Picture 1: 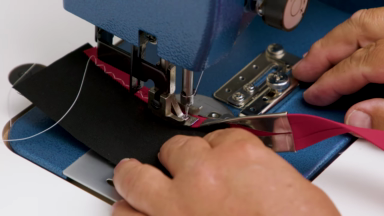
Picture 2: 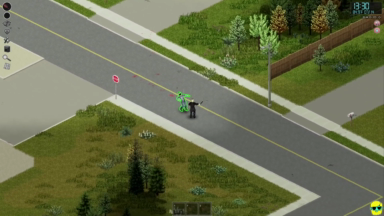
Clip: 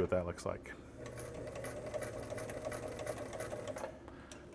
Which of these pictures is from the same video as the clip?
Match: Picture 1